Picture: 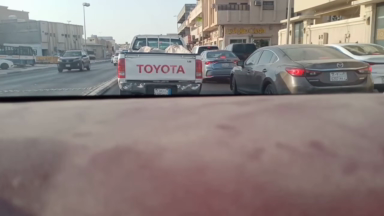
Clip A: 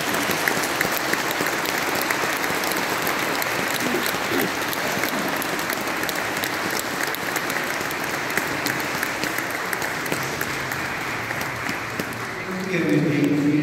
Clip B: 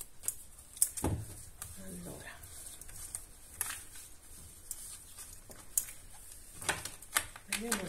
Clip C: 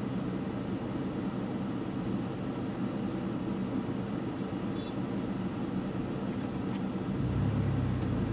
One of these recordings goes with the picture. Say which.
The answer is C